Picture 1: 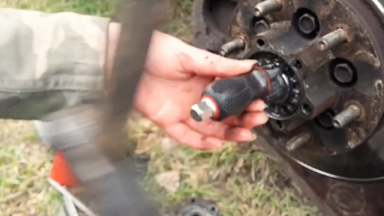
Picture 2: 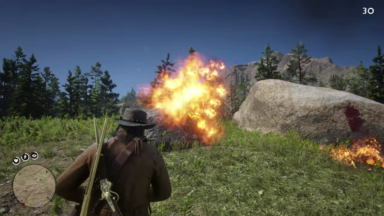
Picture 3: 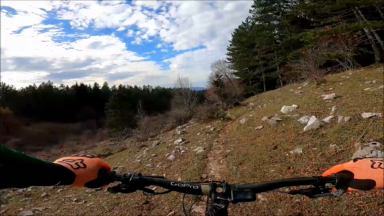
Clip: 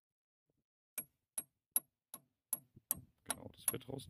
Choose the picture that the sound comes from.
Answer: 1